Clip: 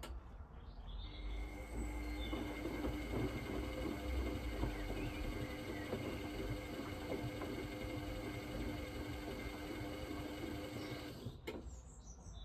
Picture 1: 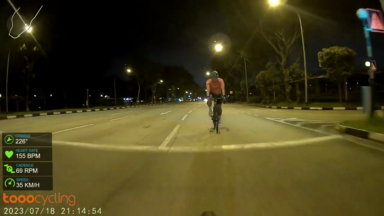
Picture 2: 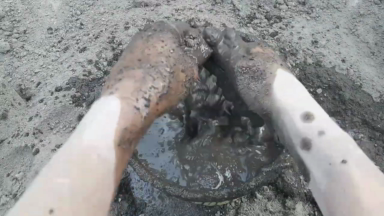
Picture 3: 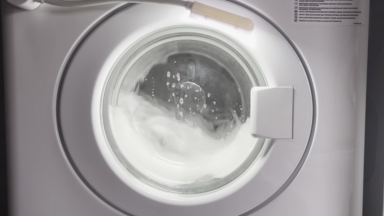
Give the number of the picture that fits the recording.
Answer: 3